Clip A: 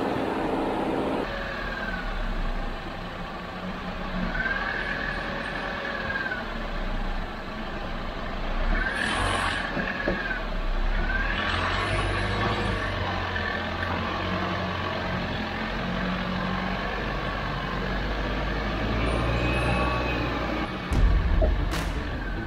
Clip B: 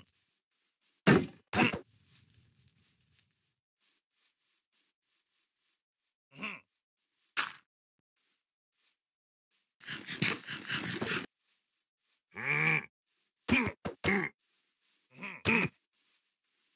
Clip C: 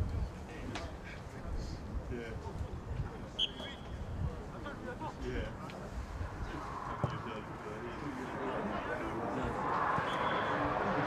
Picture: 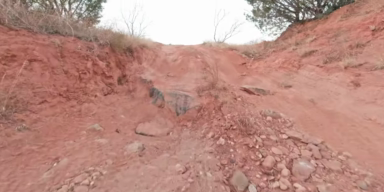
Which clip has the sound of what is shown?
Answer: A